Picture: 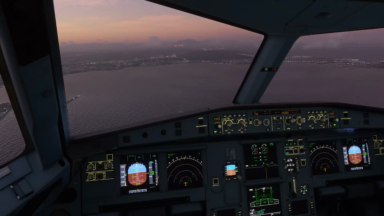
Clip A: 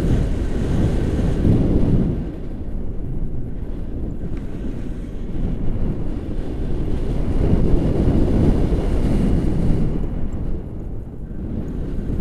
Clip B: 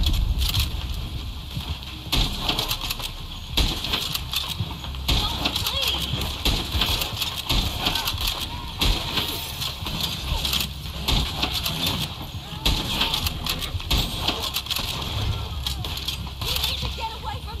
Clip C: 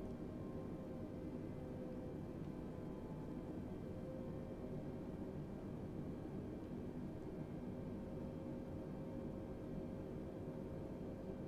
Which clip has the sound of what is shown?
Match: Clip C